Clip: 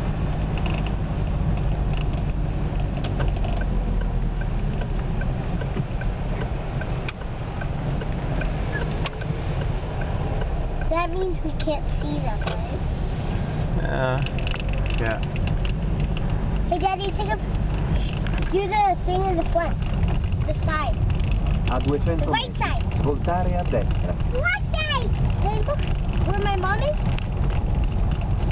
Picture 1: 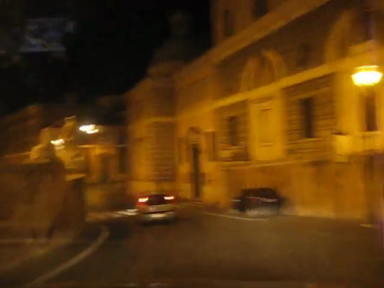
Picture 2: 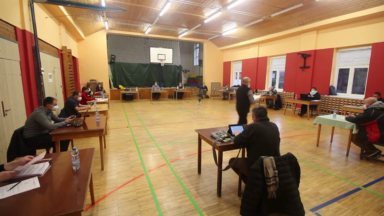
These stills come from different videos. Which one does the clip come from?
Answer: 1